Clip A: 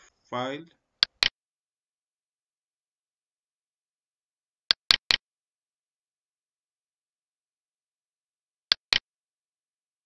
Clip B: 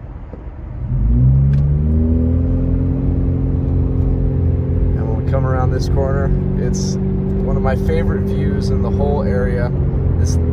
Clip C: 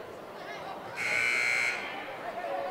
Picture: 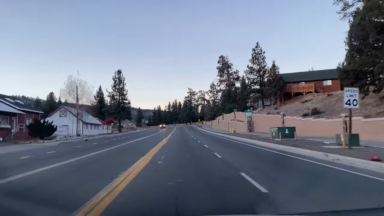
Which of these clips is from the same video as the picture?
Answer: B